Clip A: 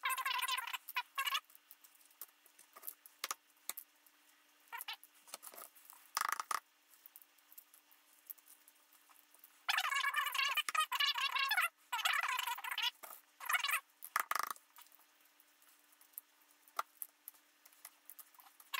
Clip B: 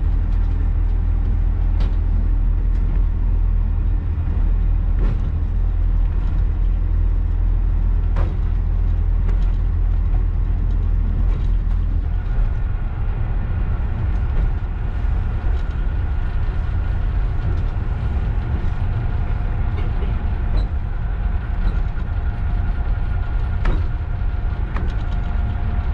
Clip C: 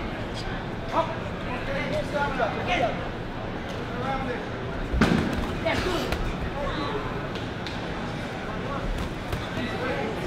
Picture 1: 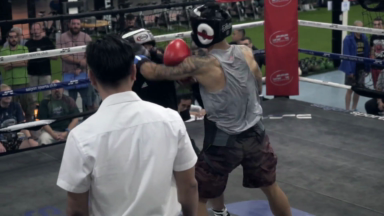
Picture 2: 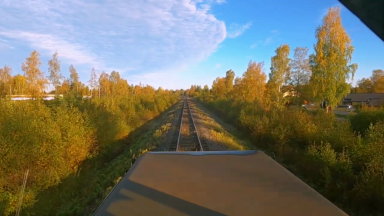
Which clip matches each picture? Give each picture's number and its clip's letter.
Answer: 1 C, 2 B